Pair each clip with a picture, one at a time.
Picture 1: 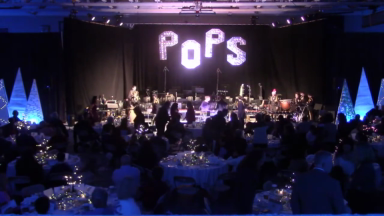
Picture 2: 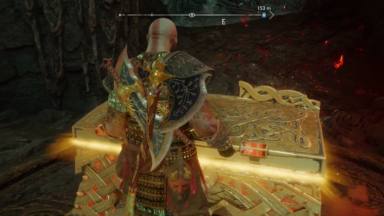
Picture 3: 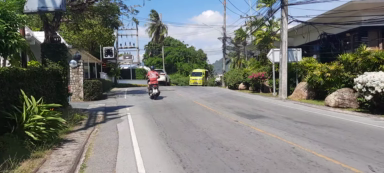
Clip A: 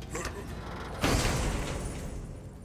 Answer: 2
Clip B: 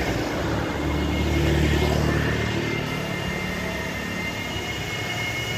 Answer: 3